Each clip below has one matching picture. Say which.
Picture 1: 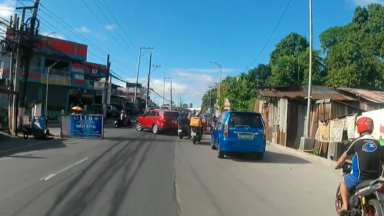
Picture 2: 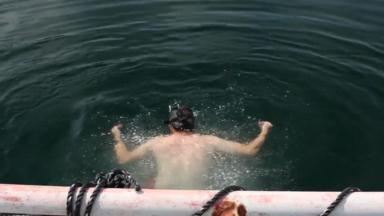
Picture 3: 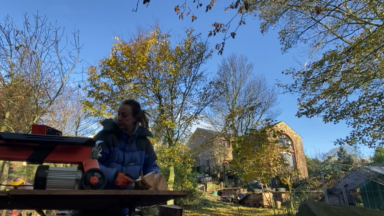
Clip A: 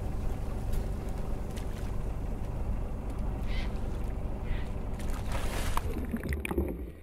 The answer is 2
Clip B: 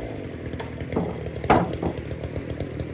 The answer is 3